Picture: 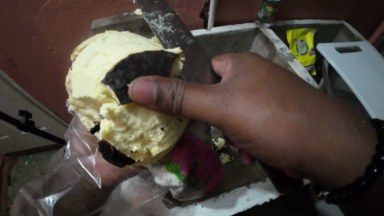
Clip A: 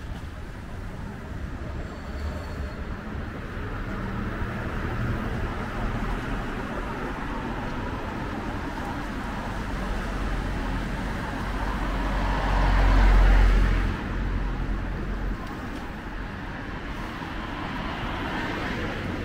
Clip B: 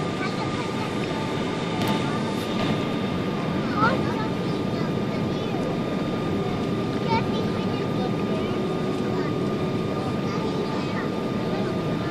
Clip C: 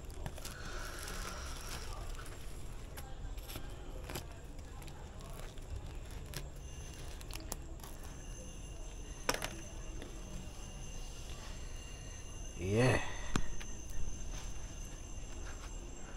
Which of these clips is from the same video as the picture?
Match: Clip C